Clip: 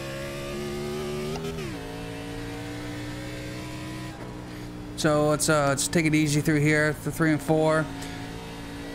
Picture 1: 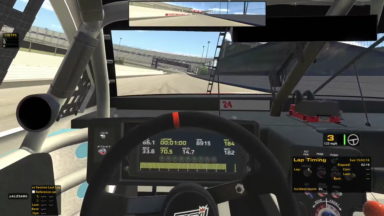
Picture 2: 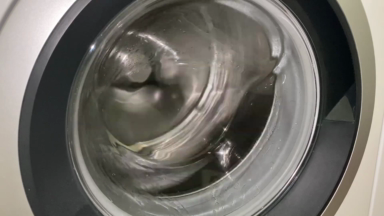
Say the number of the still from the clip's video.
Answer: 1